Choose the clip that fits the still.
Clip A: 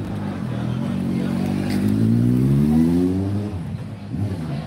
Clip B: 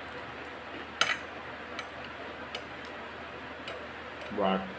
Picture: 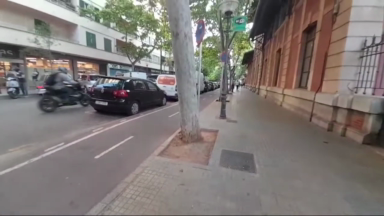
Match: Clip A